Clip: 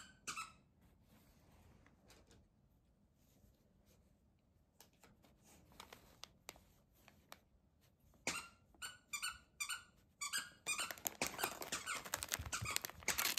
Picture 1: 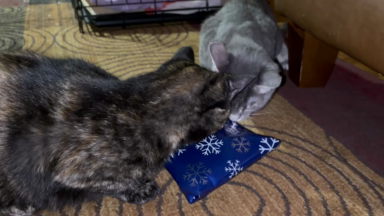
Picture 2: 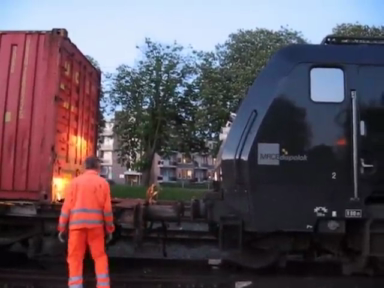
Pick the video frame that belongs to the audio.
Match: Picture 1